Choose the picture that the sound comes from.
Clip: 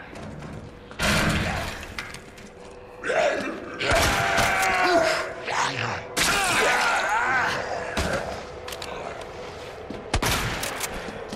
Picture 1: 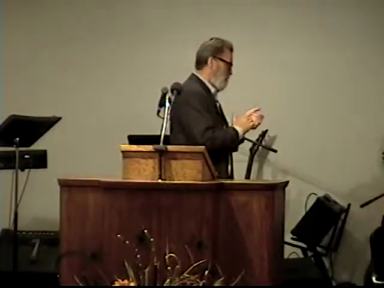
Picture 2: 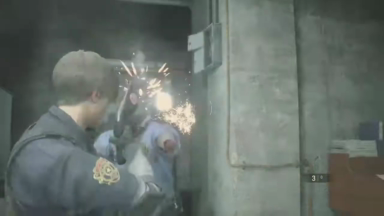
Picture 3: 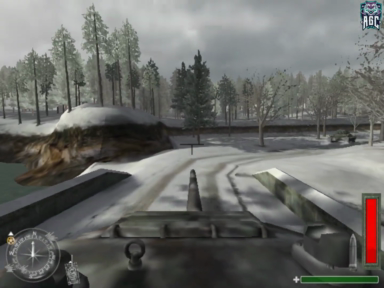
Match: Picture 2